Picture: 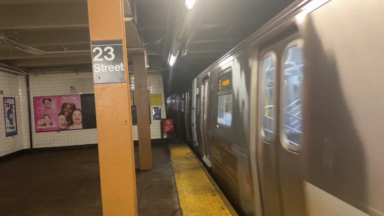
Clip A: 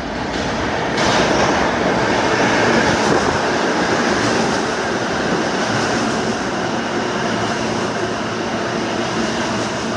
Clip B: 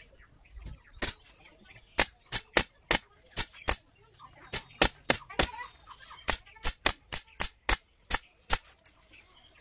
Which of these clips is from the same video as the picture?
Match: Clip A